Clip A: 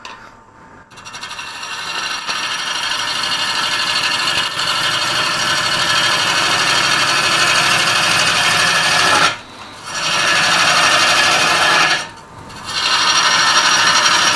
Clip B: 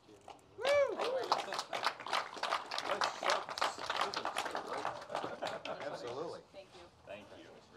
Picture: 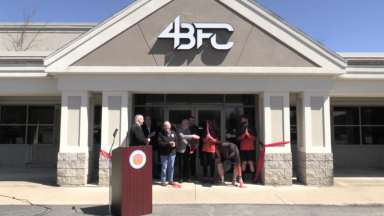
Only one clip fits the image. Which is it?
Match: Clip B